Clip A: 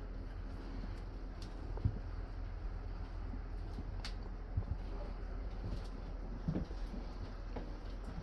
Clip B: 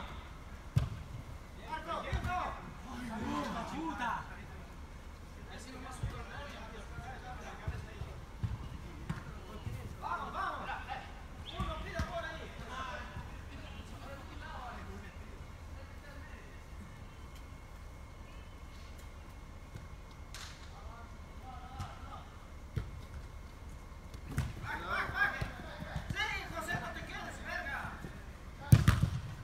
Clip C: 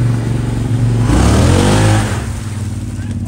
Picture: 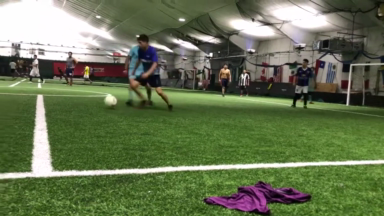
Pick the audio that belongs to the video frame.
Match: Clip B